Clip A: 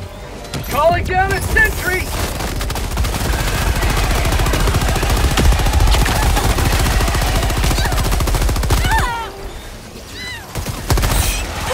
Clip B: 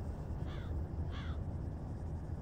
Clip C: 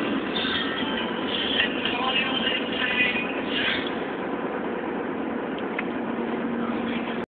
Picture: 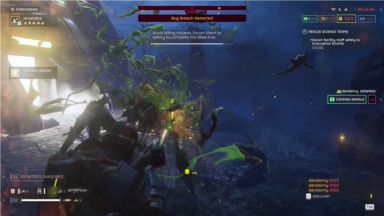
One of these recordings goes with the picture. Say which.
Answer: A